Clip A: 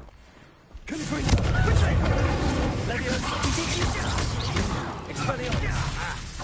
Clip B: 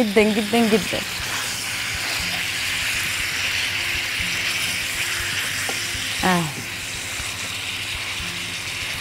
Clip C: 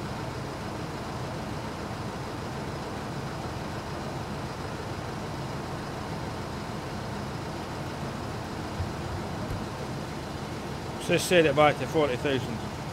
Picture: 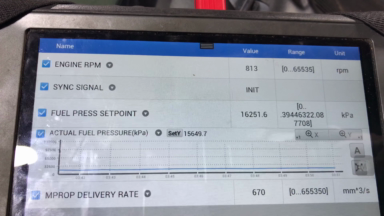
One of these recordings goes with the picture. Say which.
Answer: C